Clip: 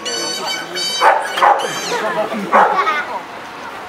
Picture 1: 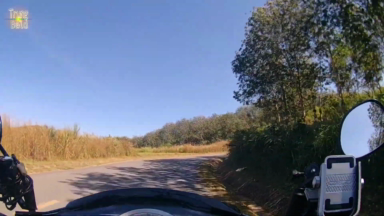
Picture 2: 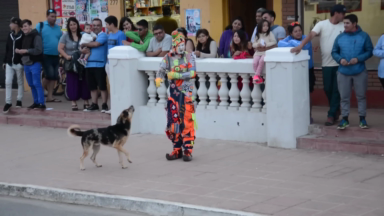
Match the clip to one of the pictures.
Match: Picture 2